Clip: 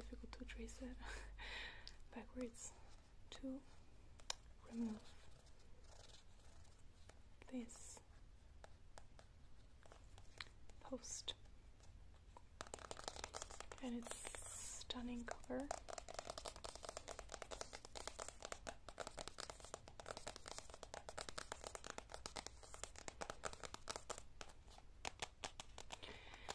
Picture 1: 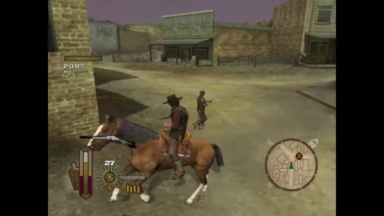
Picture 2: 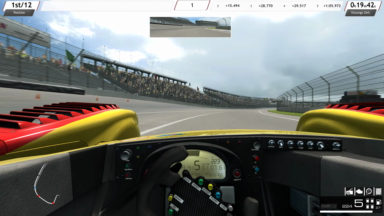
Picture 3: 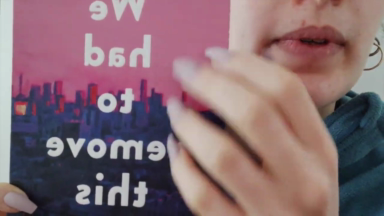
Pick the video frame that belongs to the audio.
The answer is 3